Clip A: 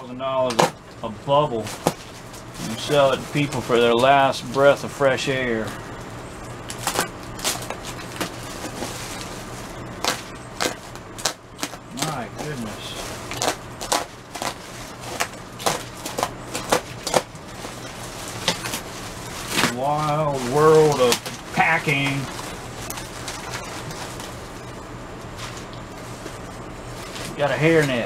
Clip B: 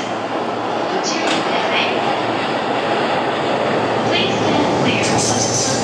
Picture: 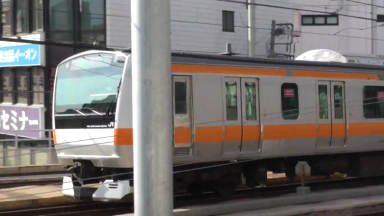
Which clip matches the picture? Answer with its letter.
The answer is B